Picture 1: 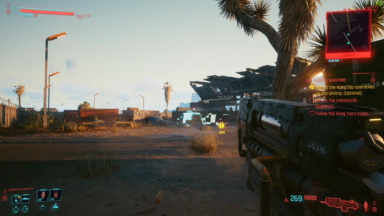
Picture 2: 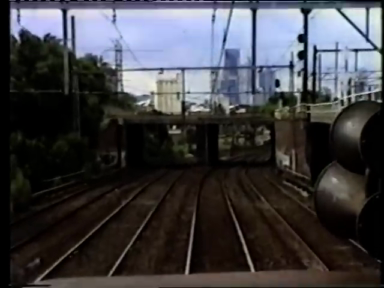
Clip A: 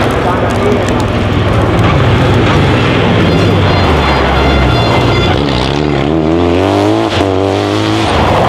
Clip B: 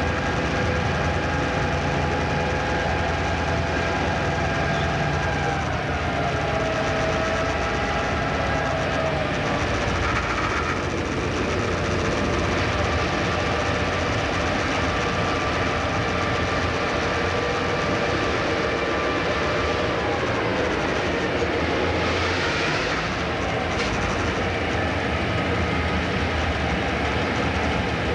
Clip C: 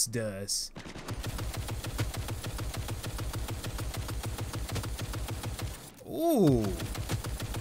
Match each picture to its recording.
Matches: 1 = C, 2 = B